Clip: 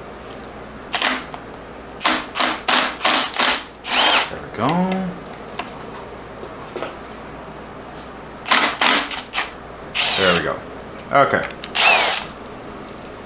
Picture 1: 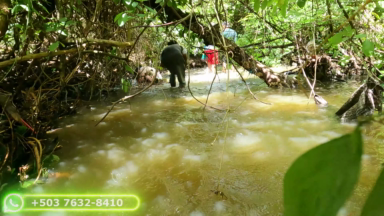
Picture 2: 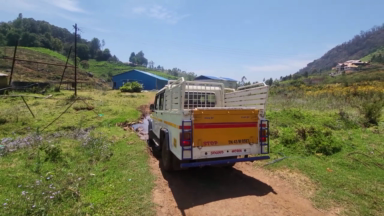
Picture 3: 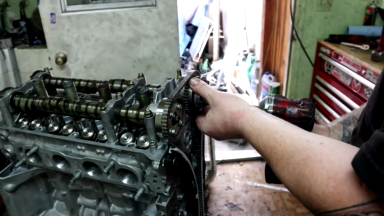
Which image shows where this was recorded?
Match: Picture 3